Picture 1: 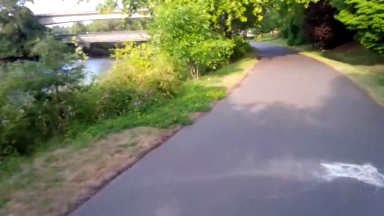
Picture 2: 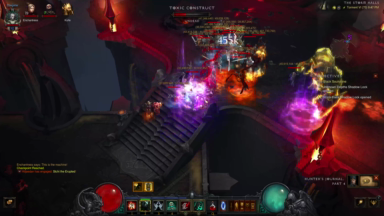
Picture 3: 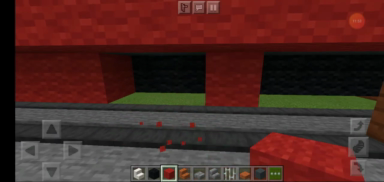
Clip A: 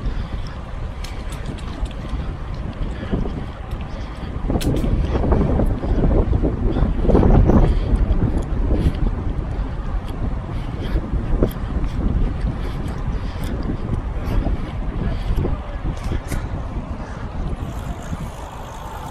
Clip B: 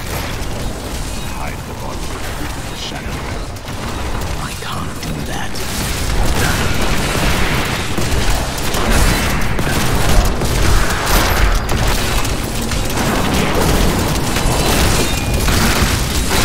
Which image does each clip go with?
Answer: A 1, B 2